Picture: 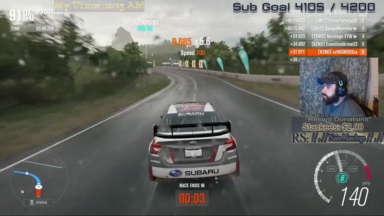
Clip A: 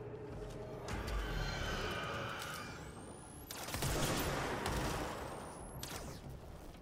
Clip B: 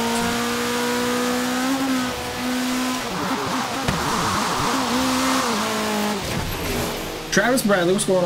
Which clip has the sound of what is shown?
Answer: B